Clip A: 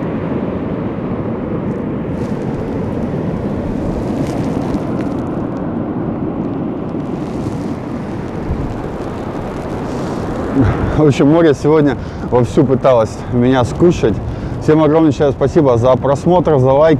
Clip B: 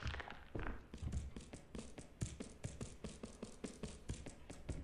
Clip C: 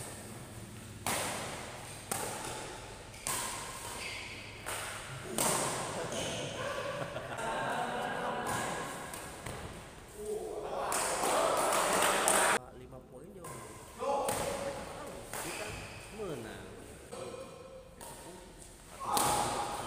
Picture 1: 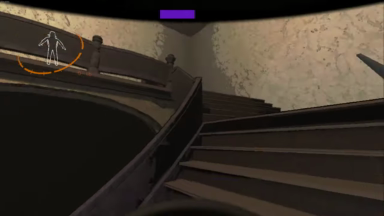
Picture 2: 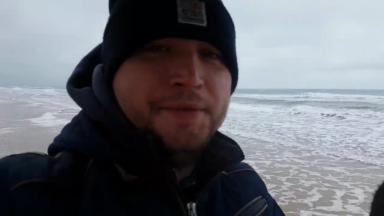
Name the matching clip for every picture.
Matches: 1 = B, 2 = A